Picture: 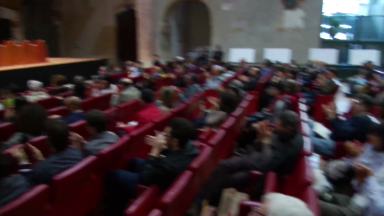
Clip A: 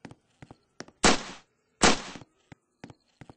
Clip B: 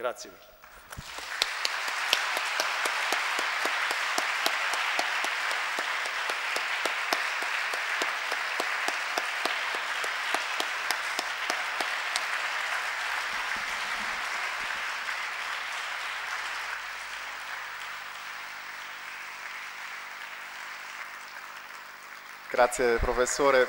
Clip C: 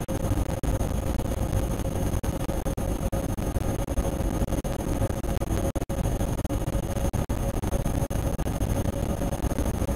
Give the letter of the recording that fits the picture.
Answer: B